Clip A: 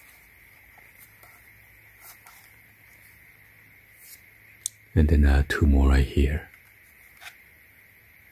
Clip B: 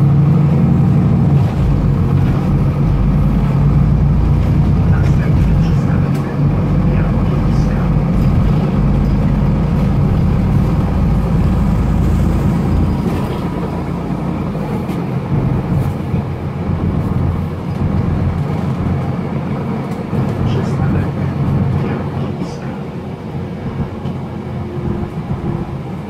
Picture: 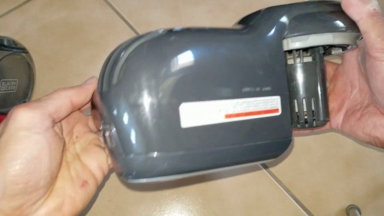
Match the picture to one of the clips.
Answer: A